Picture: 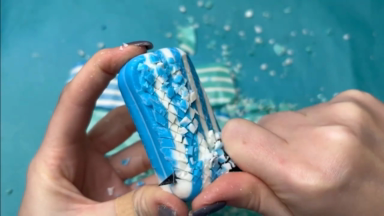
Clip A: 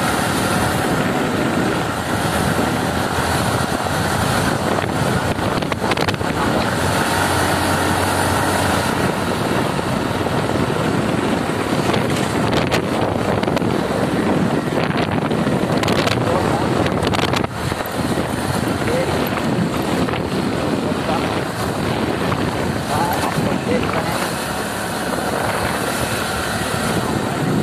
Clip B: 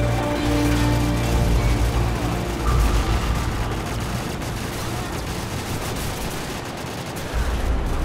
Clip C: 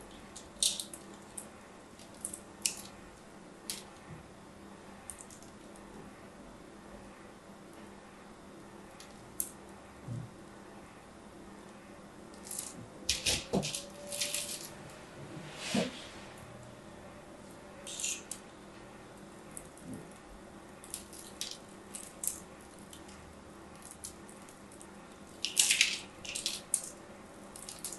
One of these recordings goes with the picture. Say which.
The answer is C